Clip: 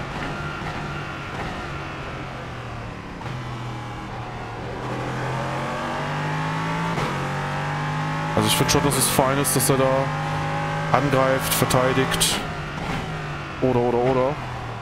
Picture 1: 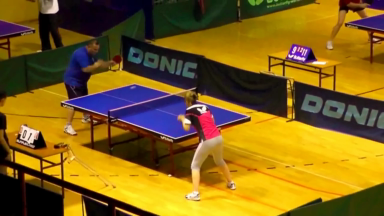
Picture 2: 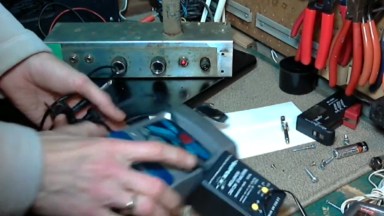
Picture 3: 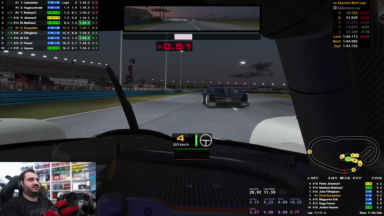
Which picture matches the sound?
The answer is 3